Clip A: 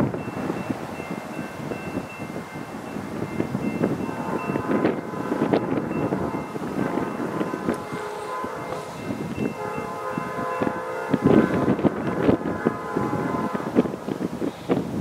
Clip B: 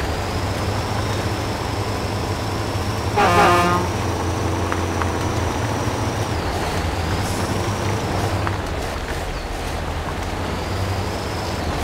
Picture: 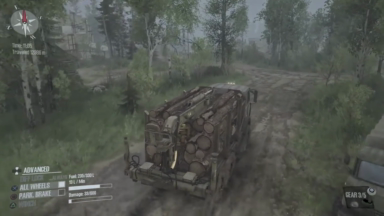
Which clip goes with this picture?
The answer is B